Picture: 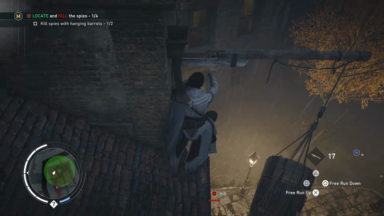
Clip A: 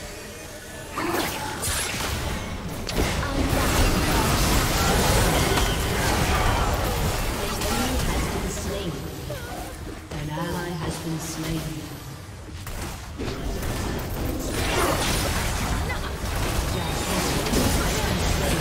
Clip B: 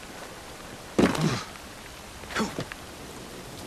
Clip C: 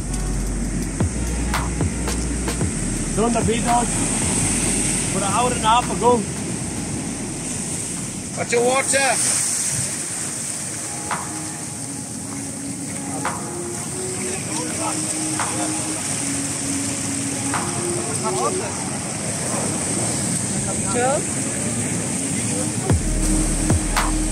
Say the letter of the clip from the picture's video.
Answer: B